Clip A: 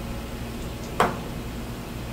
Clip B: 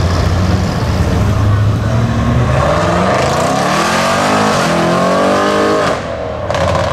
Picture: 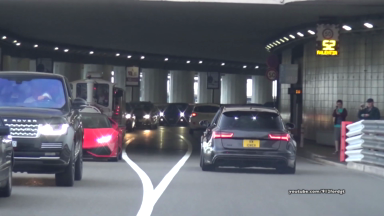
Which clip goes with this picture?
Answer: B